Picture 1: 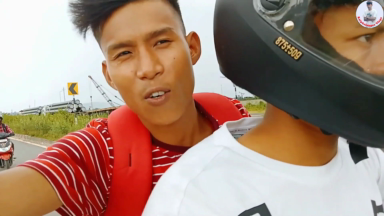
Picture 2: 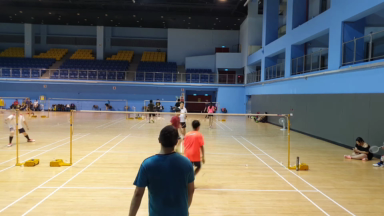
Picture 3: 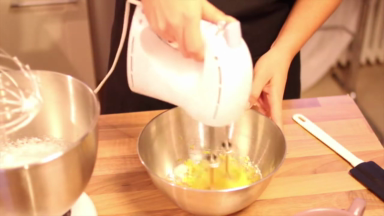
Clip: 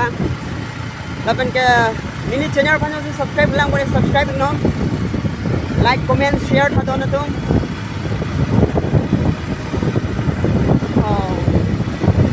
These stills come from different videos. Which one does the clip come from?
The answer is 1